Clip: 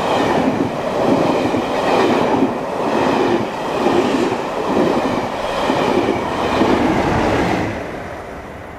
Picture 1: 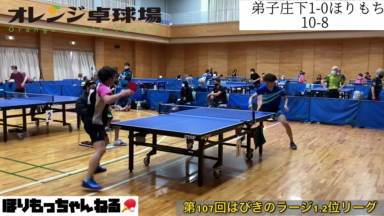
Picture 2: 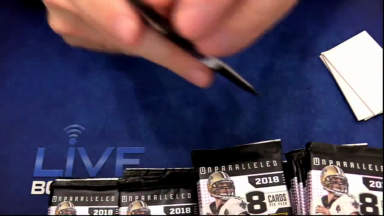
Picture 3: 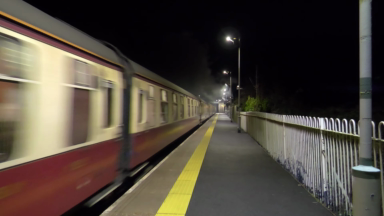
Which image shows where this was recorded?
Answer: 3